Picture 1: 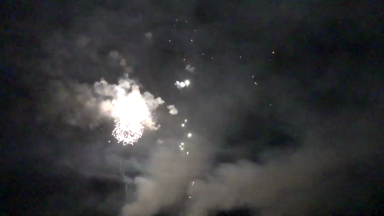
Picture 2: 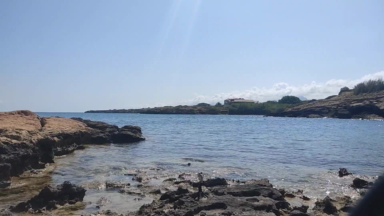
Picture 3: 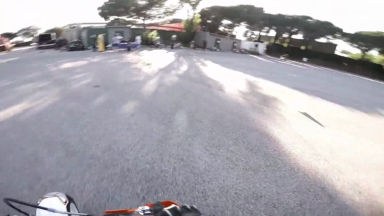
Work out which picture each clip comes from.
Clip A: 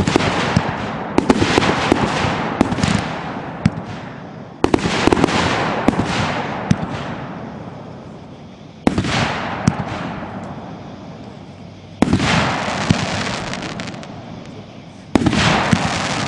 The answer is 1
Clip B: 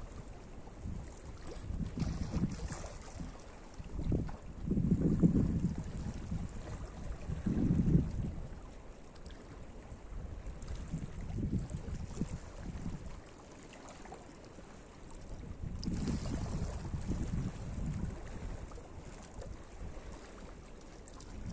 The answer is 2